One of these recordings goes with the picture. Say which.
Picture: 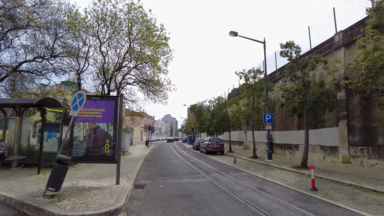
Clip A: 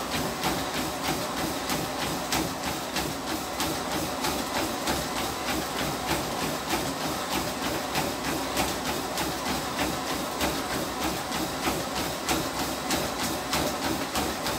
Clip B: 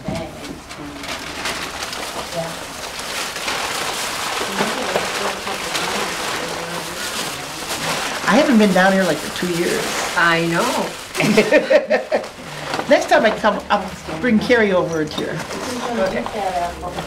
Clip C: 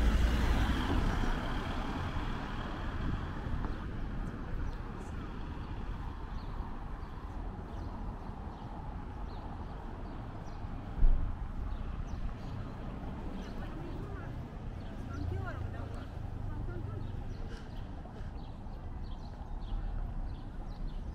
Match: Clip C